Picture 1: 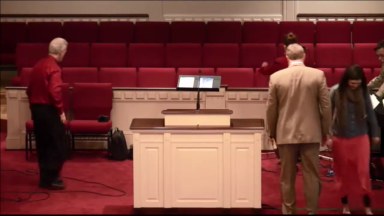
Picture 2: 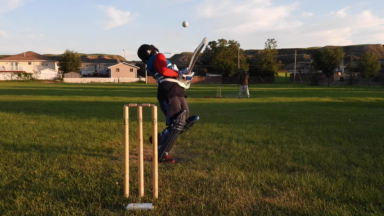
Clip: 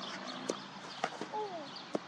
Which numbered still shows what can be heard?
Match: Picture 2